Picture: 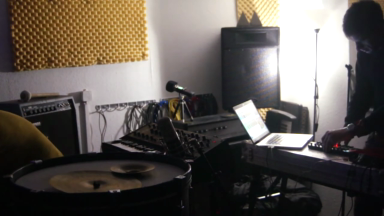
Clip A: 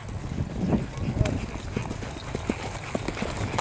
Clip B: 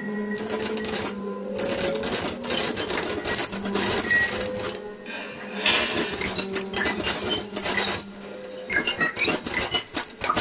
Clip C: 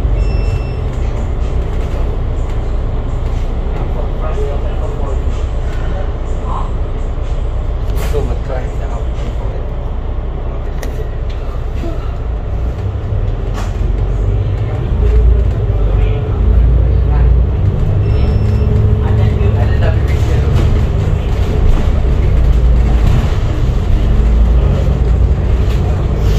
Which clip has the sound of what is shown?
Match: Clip B